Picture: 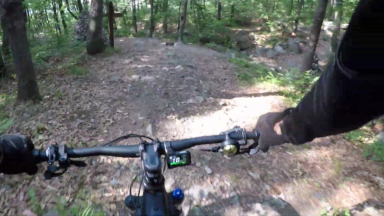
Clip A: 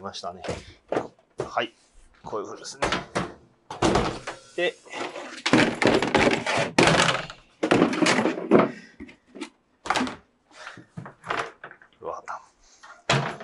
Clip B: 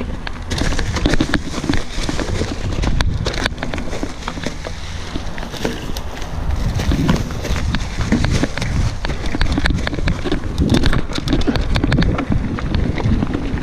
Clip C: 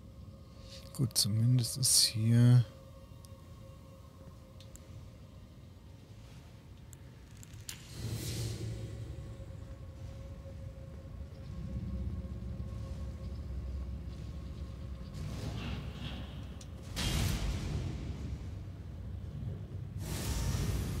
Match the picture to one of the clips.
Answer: B